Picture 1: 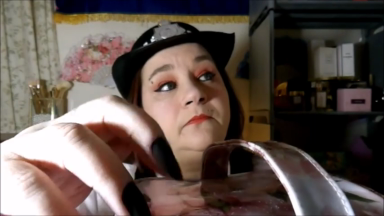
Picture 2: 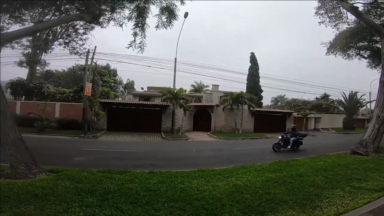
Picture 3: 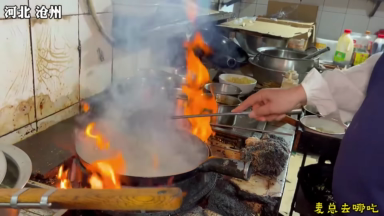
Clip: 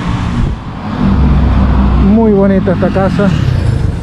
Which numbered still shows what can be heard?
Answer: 2